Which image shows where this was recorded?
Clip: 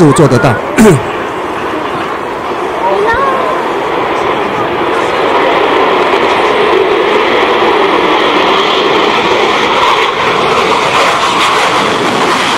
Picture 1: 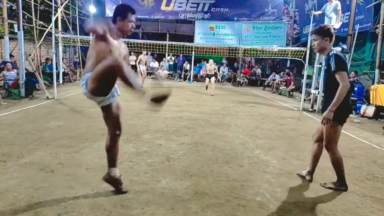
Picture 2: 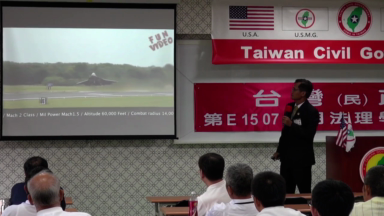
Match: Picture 2